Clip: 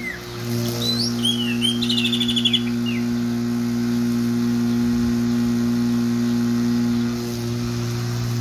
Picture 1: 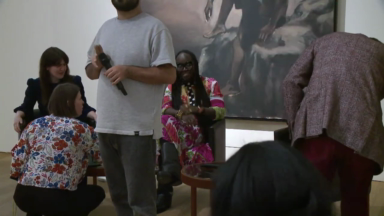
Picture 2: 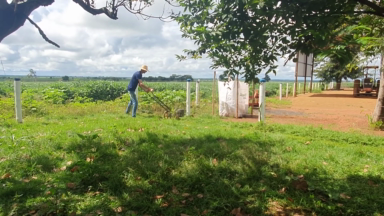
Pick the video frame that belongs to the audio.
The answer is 2